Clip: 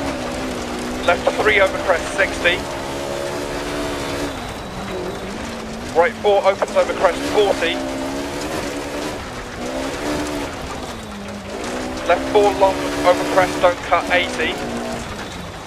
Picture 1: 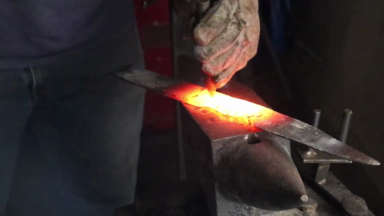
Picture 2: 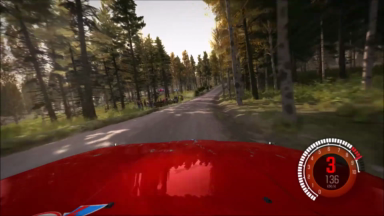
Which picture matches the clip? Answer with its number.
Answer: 2